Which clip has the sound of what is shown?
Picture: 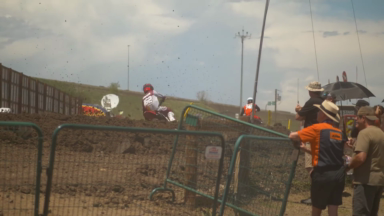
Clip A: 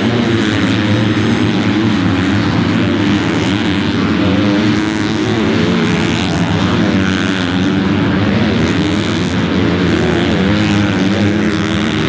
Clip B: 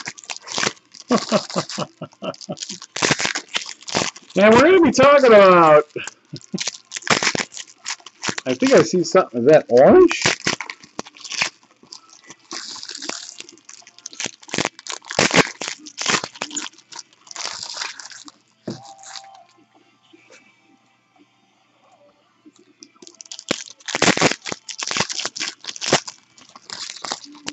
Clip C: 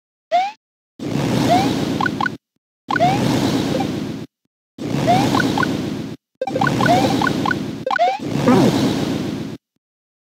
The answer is A